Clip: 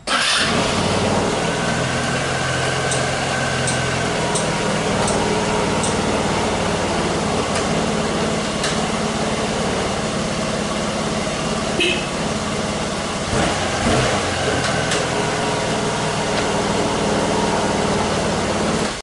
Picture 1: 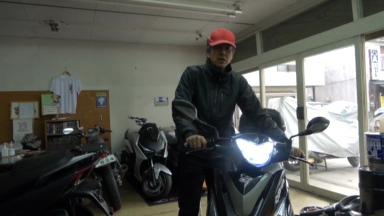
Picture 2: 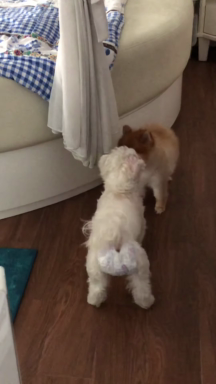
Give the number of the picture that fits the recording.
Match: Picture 1